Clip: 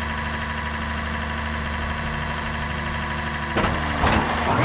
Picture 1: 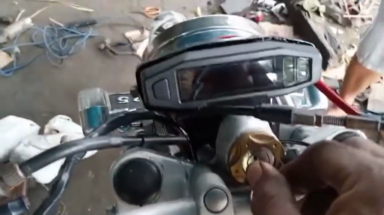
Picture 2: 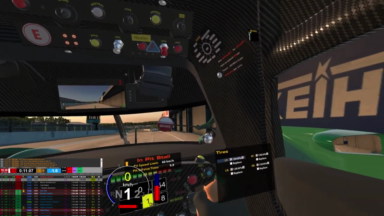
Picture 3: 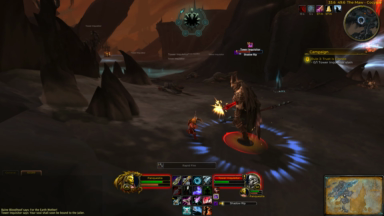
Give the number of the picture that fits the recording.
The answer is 2